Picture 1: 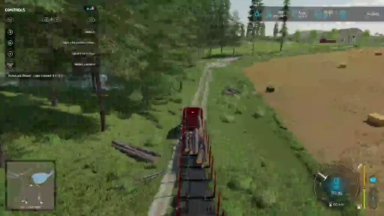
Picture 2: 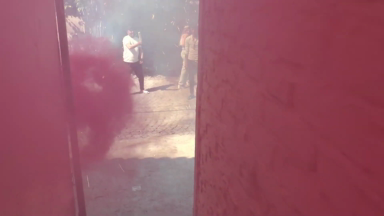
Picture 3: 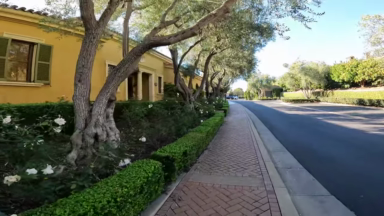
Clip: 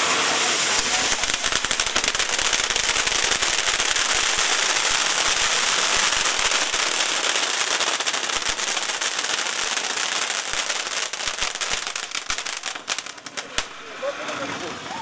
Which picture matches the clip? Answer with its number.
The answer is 2